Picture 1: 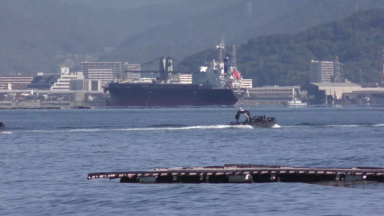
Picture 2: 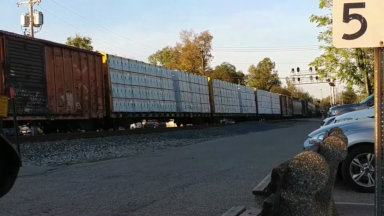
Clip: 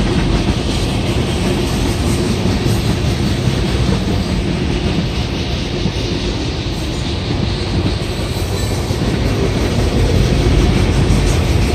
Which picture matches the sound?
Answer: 2